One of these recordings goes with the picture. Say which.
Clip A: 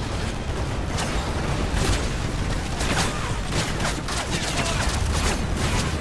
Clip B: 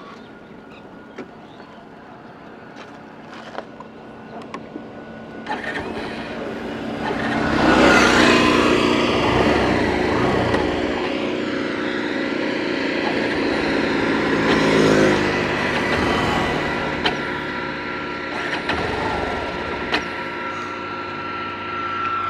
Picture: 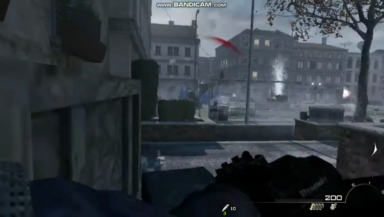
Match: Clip A